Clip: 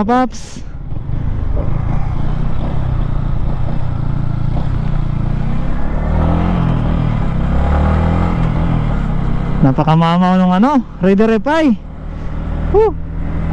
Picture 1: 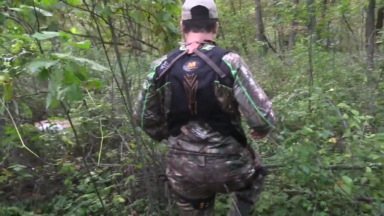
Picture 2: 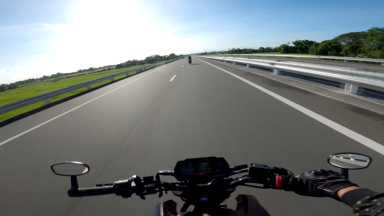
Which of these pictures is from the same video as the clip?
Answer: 2